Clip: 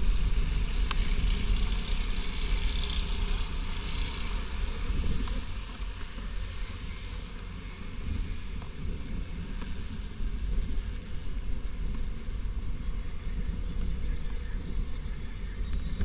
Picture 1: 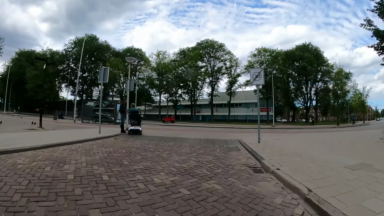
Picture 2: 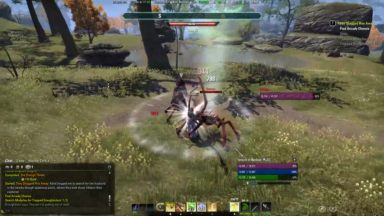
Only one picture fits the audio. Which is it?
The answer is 1